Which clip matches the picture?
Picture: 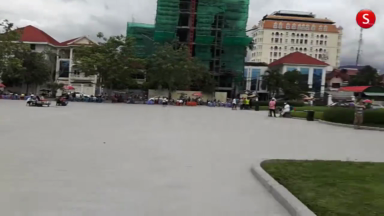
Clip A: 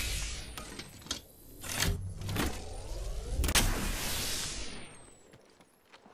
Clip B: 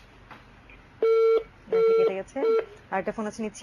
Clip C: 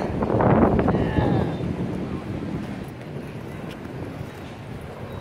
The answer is C